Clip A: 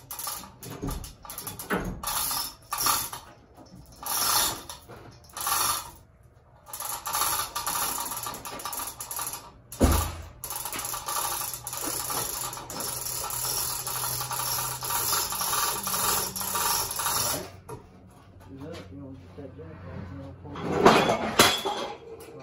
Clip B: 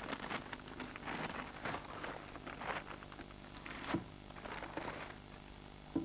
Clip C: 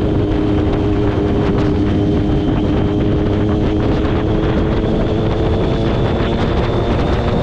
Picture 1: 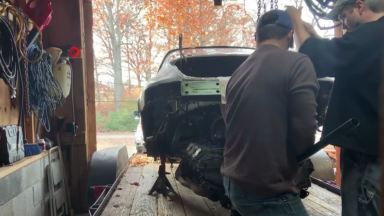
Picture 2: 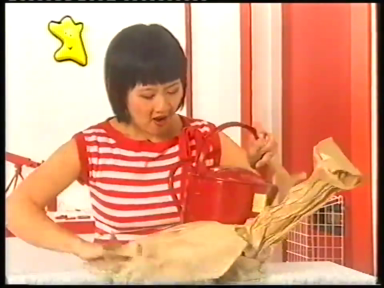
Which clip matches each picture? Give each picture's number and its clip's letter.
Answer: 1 A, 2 B